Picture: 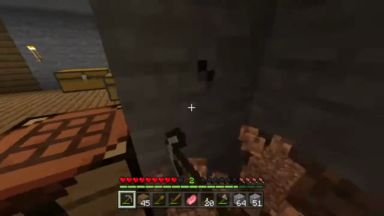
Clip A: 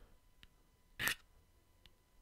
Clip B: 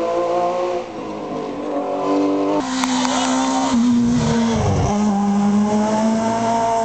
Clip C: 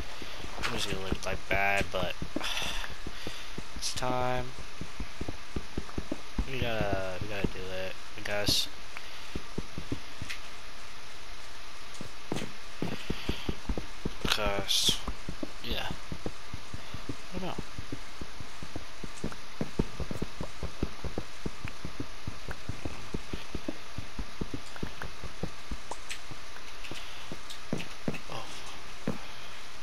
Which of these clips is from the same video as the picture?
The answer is C